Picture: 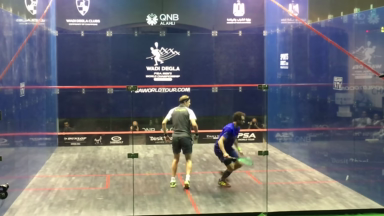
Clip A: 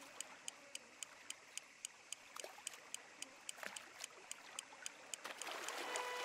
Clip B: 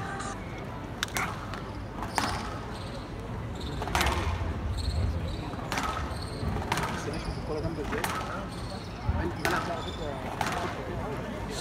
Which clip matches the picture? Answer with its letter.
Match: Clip B